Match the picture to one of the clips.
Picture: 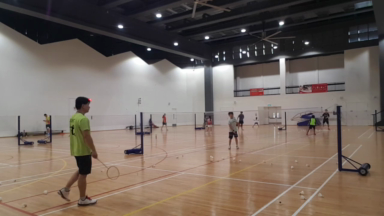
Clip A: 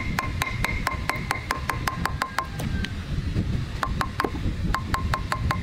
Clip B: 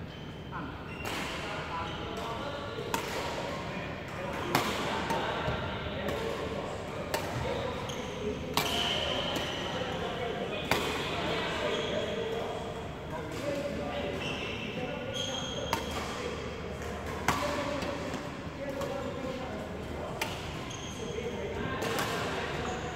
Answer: B